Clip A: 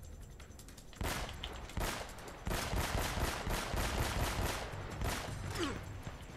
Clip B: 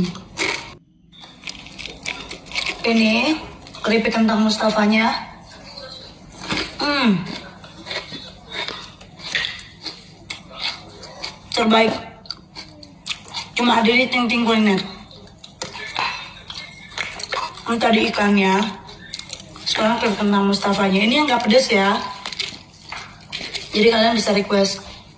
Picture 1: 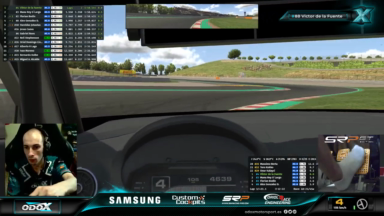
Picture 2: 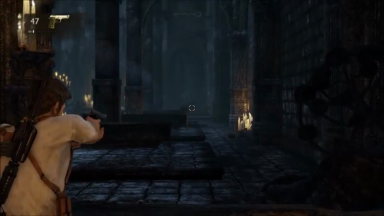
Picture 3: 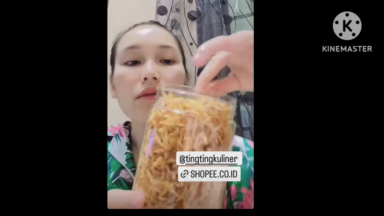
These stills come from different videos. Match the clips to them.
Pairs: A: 2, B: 3